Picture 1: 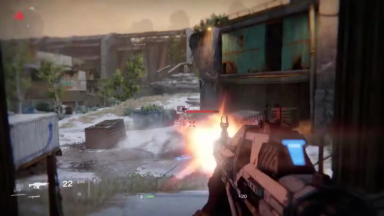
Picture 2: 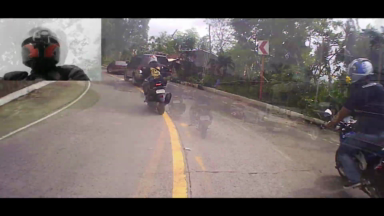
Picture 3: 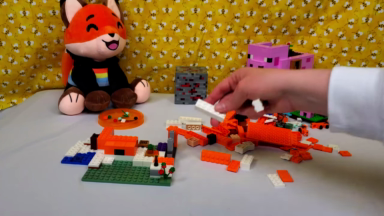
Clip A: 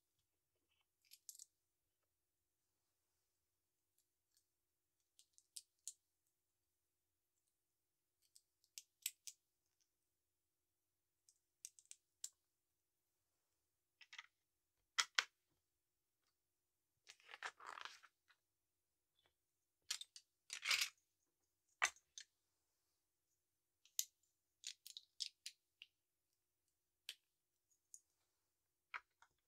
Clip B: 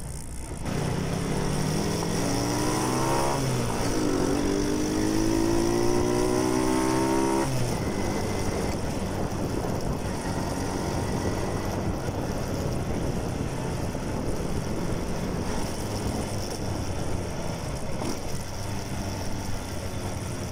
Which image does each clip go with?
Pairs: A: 3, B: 2